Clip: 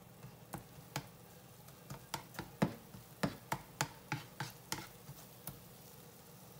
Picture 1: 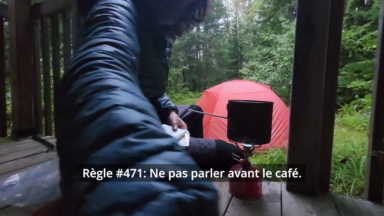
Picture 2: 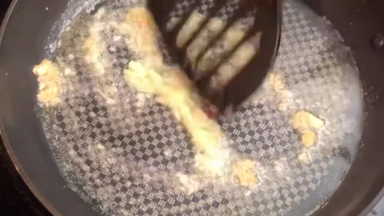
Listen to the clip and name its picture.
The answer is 2